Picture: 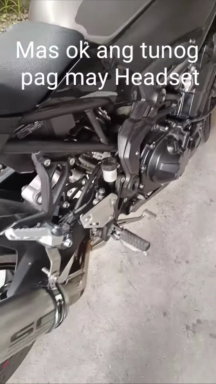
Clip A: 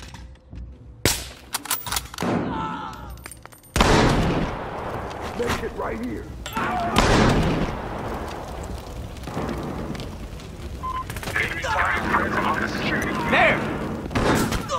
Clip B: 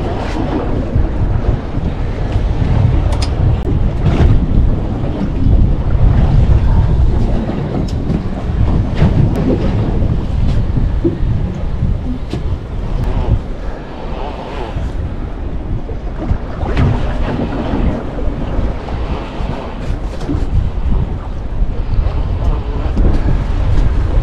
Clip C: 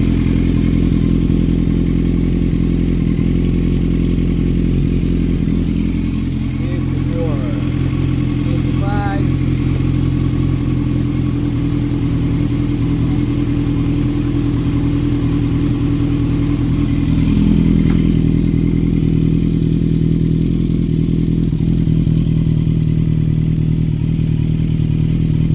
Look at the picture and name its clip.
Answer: C